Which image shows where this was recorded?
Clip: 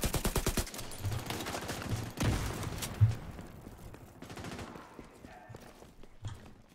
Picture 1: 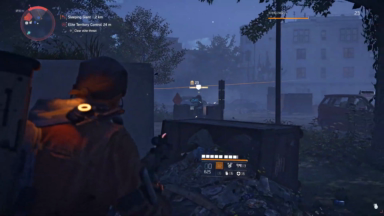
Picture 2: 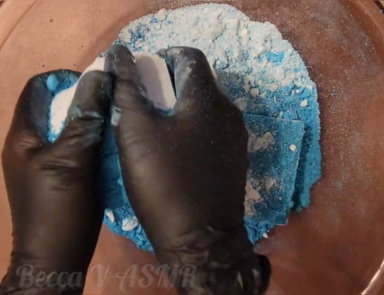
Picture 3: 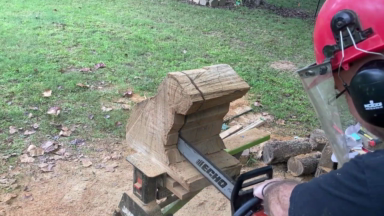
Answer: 1